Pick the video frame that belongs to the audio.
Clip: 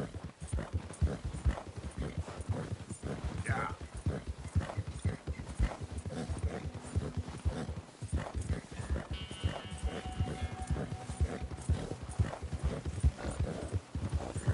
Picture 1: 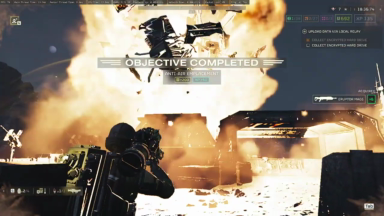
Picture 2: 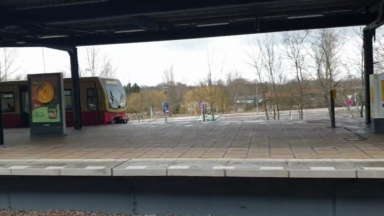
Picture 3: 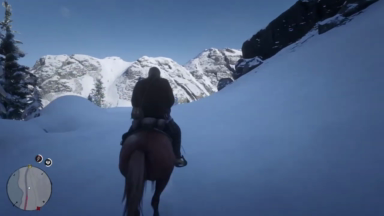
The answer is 3